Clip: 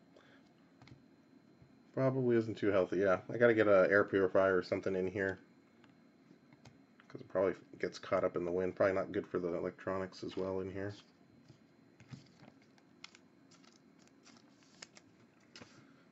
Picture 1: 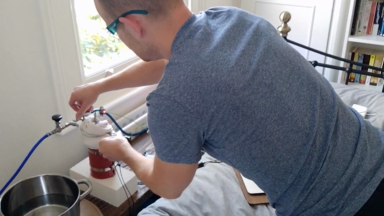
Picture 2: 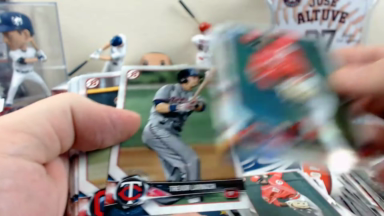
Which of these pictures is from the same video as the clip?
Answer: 2